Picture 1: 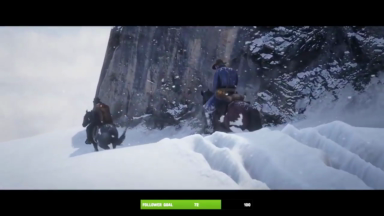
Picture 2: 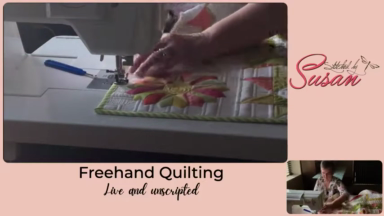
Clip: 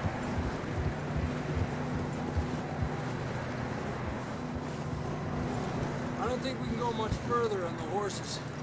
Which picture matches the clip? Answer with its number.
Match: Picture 1